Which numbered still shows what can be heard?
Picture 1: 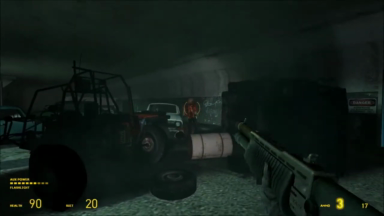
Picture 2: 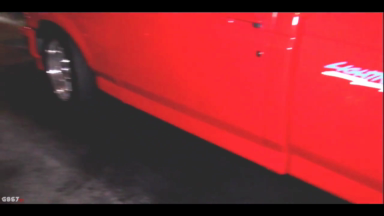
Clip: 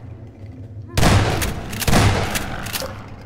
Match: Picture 1